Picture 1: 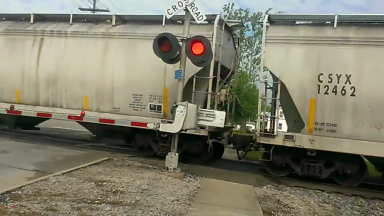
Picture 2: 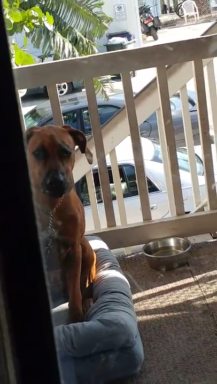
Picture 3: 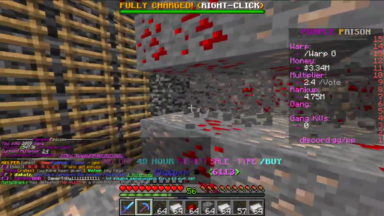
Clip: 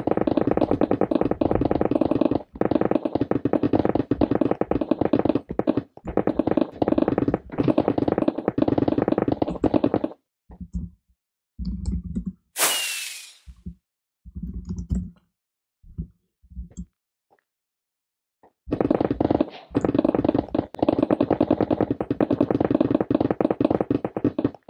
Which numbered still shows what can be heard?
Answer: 3